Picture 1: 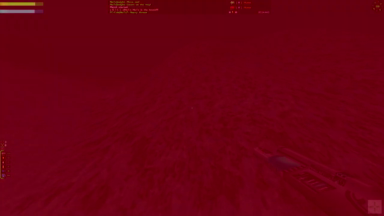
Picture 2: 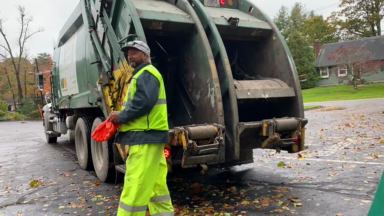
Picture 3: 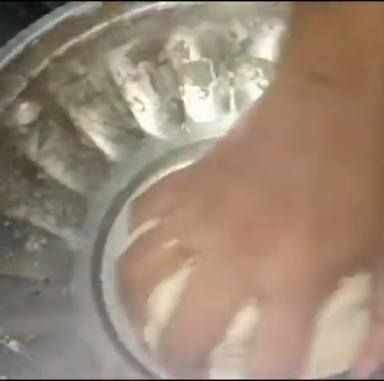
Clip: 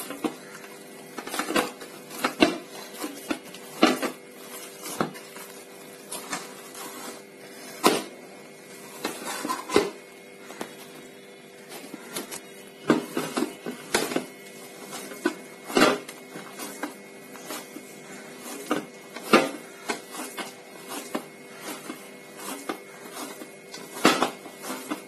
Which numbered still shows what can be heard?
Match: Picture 3